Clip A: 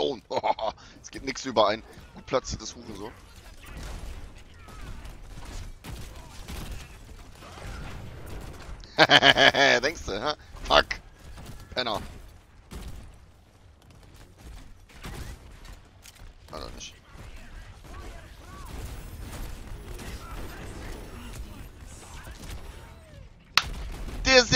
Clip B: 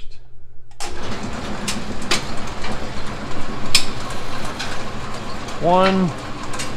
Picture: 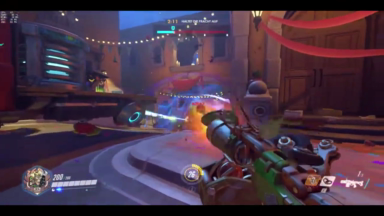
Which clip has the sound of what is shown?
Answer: A